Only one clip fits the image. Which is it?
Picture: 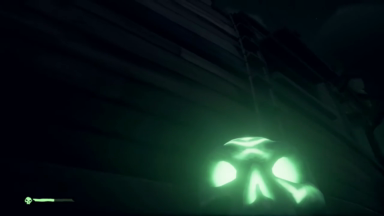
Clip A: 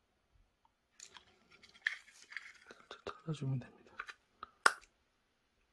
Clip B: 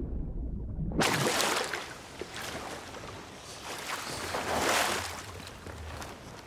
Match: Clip B